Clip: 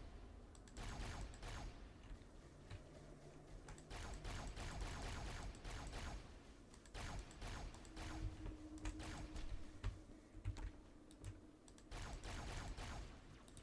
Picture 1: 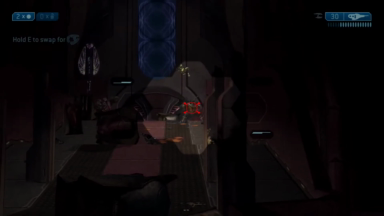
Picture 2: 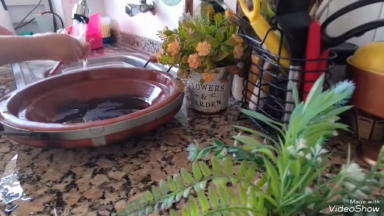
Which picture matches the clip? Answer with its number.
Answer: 1